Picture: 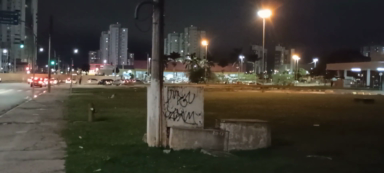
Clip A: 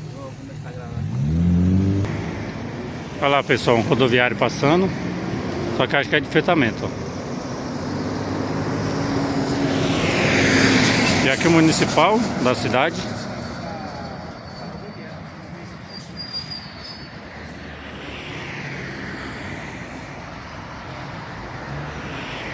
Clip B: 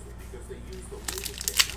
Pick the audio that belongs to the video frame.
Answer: A